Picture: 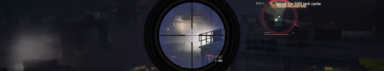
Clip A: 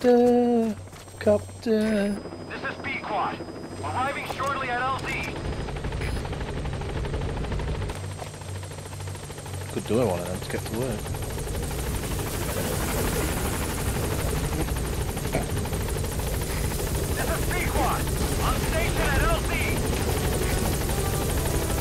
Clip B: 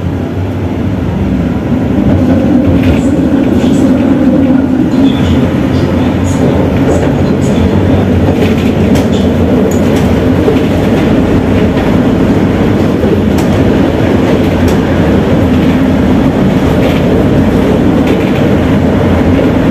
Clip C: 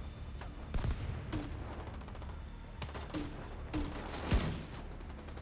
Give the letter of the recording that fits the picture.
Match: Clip C